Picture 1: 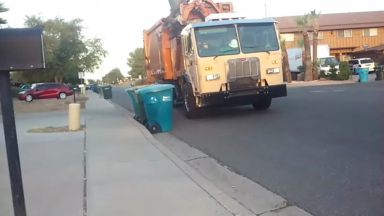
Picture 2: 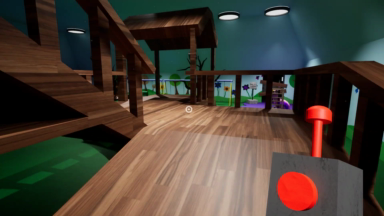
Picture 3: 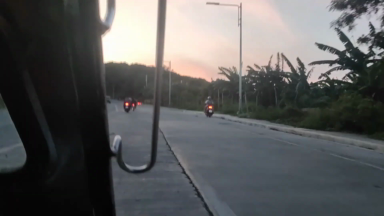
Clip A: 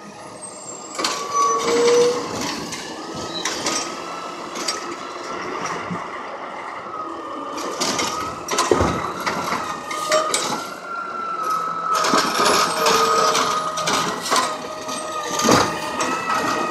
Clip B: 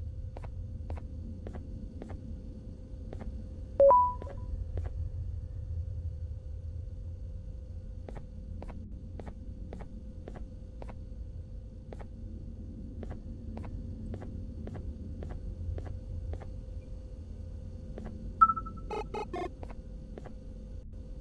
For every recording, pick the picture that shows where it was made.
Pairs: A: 1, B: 2